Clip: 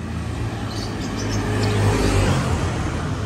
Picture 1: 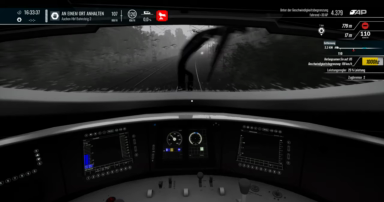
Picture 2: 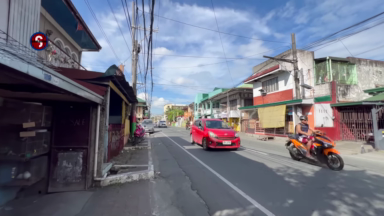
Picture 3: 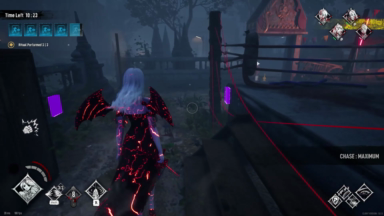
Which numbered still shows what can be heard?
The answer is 2